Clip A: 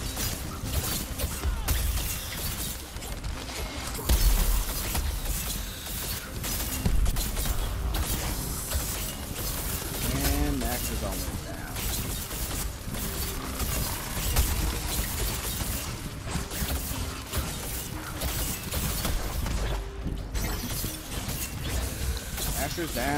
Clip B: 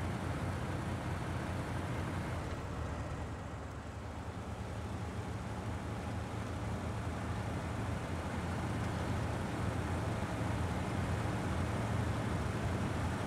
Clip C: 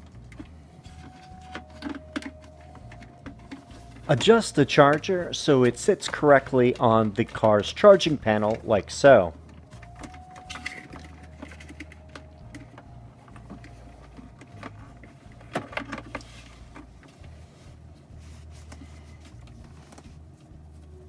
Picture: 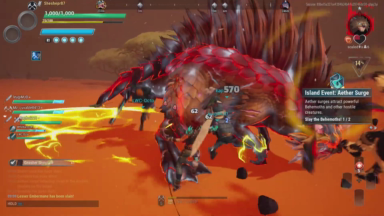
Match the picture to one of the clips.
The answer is A